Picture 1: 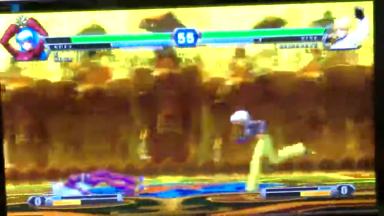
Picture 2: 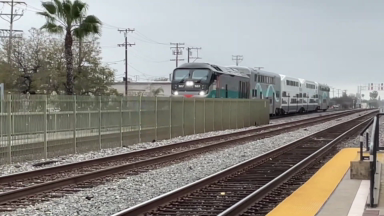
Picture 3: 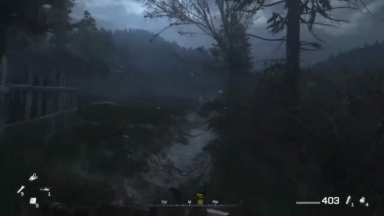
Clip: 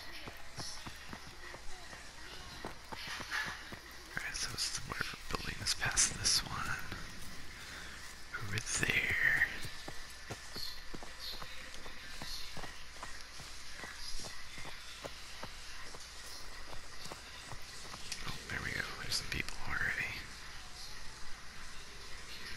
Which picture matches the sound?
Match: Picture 3